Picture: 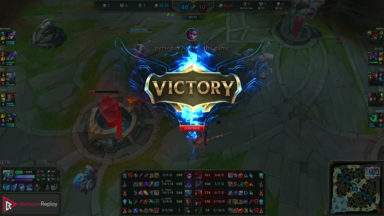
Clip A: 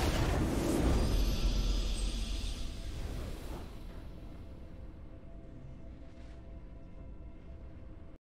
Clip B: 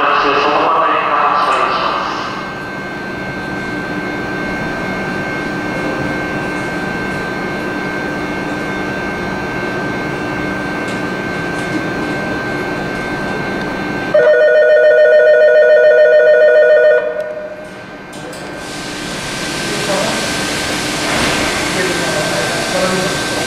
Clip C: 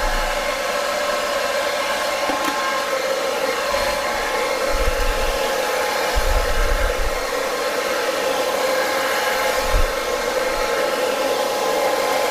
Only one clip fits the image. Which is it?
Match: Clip A